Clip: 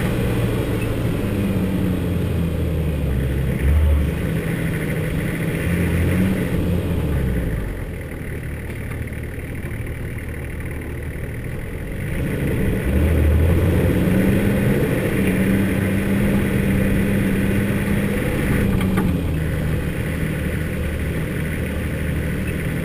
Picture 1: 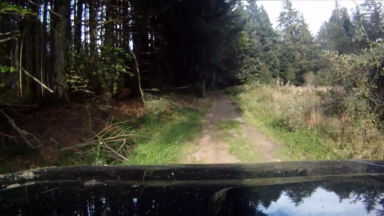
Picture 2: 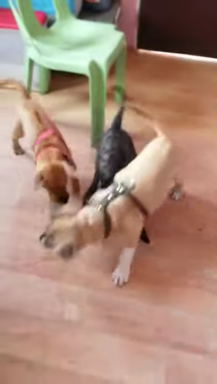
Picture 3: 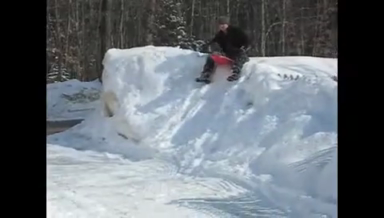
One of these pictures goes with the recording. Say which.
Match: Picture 1